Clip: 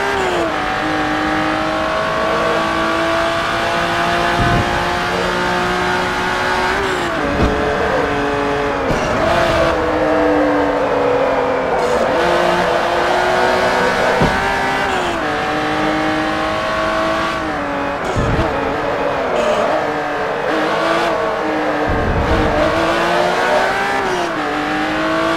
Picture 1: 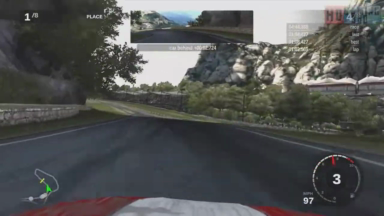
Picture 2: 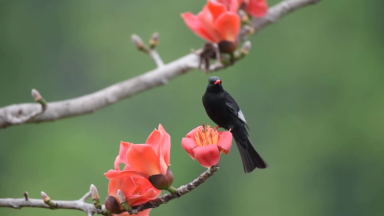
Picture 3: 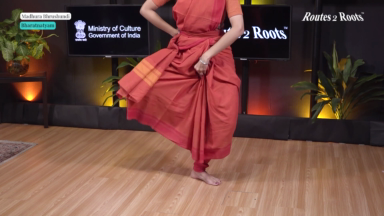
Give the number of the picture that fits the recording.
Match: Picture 1